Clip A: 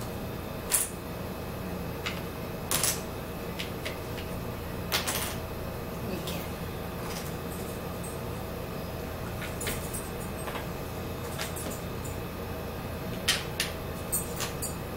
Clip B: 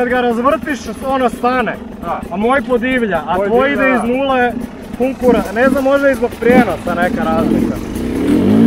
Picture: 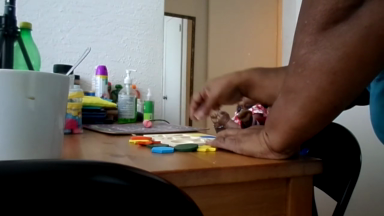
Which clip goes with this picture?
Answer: A